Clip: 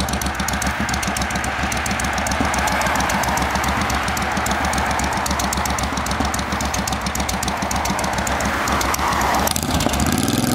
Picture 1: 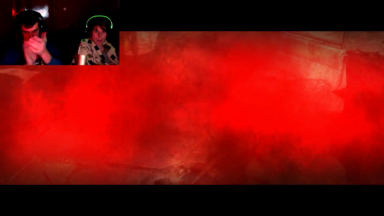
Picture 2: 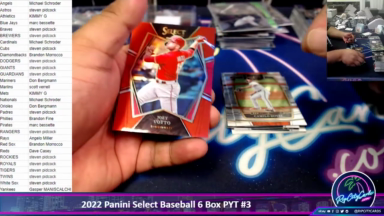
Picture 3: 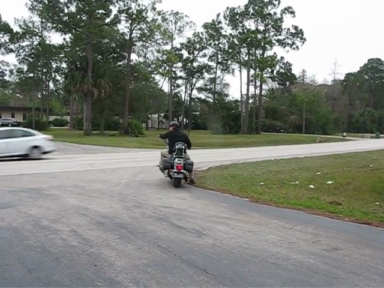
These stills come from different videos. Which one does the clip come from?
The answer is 3